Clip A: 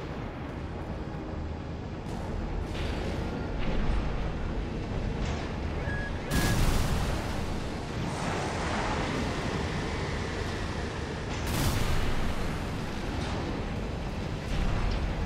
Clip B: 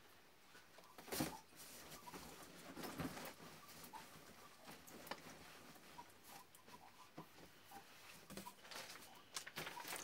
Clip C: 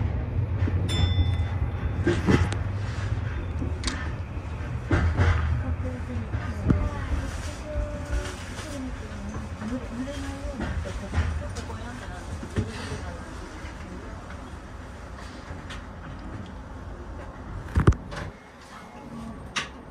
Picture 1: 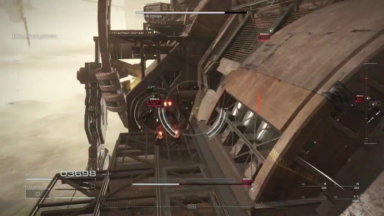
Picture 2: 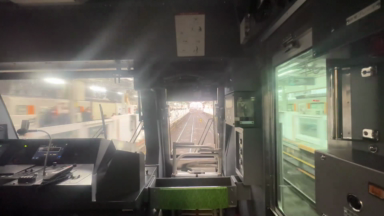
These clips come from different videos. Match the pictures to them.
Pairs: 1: A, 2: C